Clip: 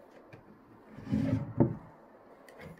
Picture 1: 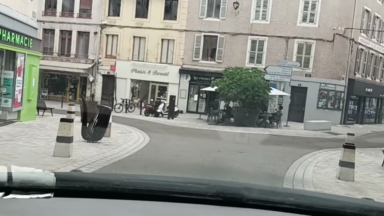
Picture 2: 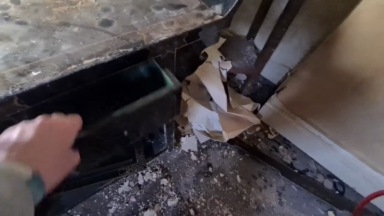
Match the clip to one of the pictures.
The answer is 2